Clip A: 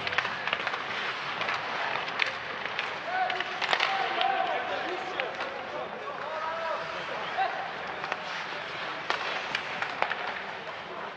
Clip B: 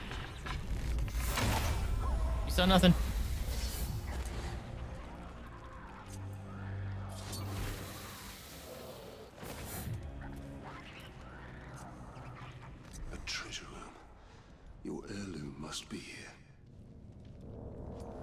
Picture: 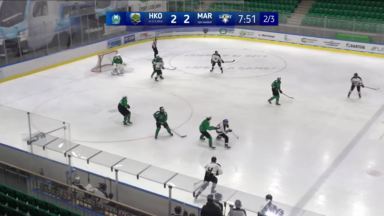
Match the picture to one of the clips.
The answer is A